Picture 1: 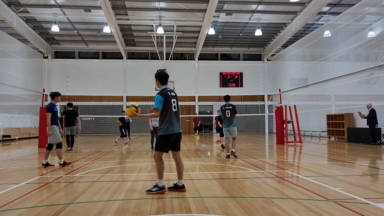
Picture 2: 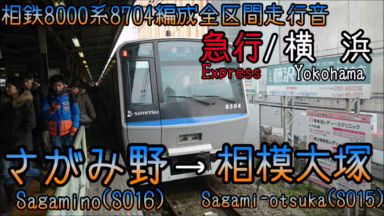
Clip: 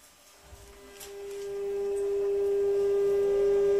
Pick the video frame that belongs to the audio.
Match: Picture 2